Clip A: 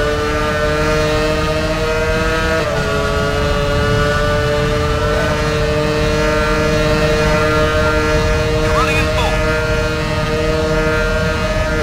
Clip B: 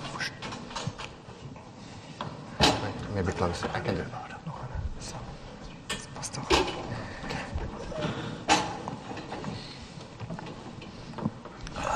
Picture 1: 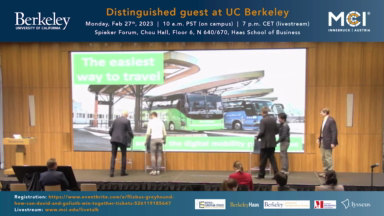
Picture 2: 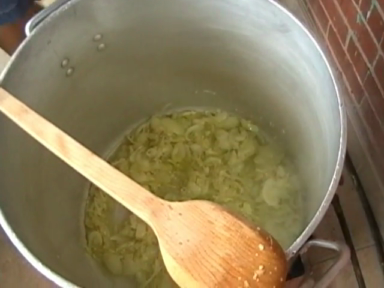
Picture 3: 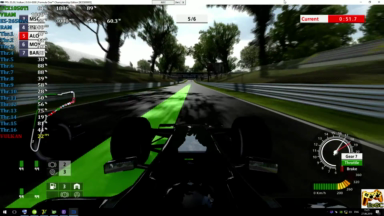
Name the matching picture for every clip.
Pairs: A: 3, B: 1